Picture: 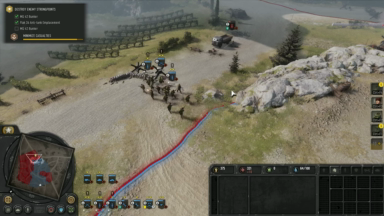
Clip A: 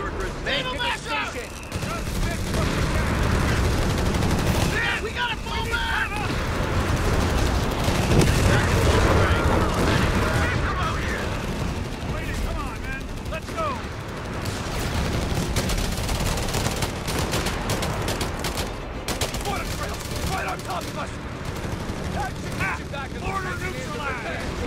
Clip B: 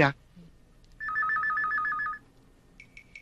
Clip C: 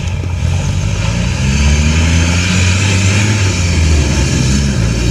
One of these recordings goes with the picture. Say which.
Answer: A